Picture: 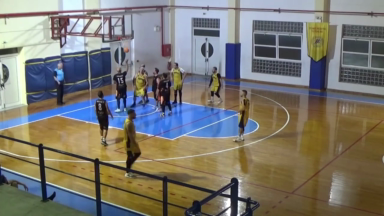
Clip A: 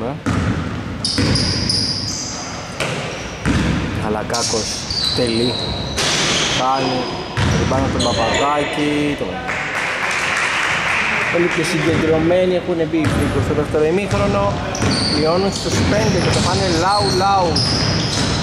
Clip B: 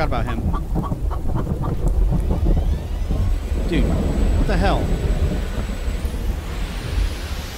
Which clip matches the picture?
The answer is A